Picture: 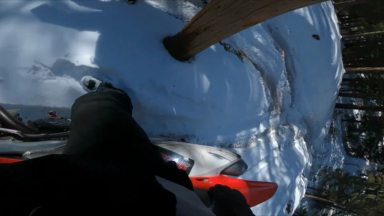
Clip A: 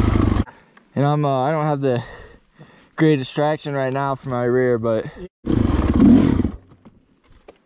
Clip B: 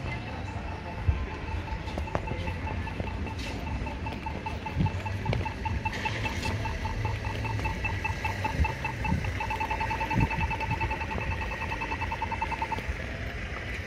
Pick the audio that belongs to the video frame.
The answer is A